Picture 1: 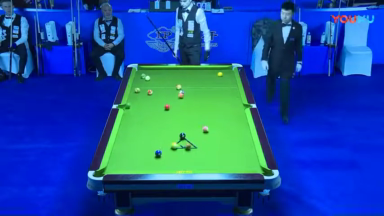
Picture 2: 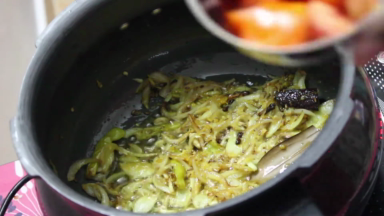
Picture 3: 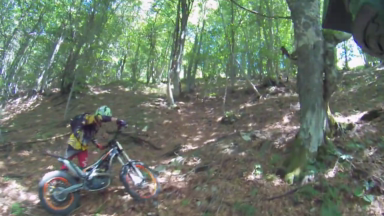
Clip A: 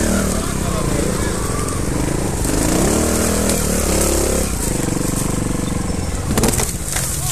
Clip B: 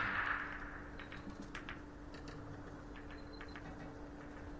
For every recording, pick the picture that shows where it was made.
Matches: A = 3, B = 1